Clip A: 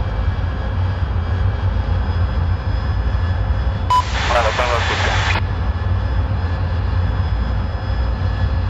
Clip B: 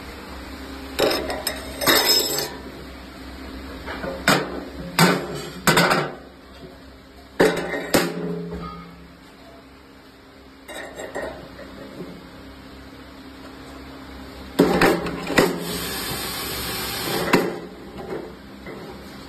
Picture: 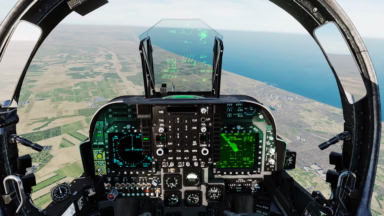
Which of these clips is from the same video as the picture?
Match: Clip A